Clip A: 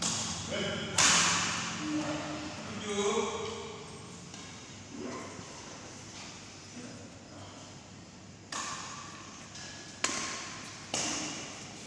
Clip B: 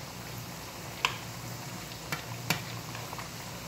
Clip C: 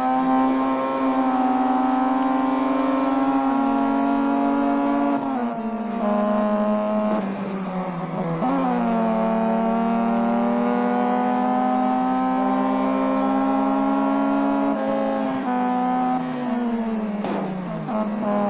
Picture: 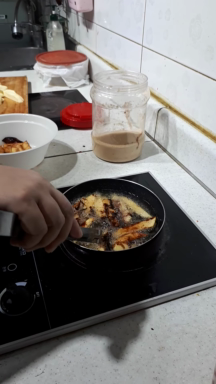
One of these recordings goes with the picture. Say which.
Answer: B